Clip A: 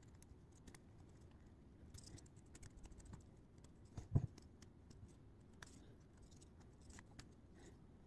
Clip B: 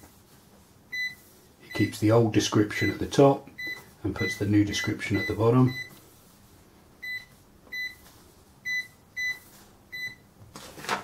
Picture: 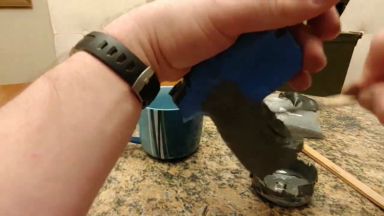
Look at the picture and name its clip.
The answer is A